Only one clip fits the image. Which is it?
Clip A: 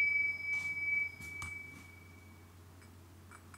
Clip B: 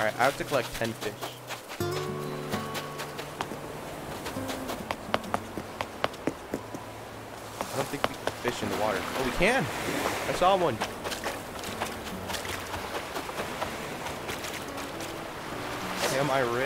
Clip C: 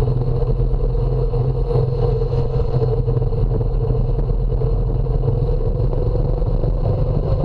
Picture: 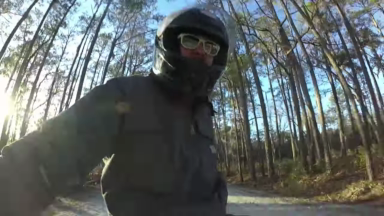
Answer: C